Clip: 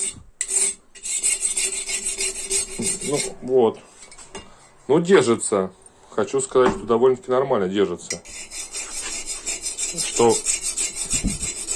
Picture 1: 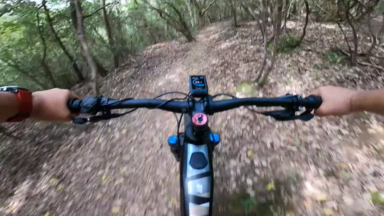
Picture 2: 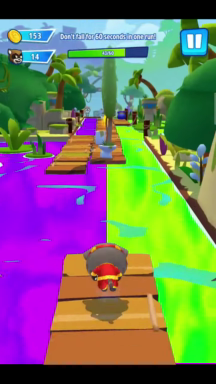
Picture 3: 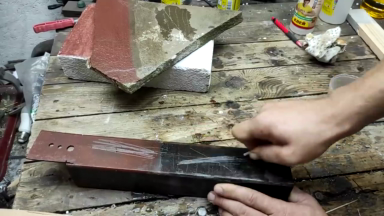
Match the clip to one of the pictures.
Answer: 3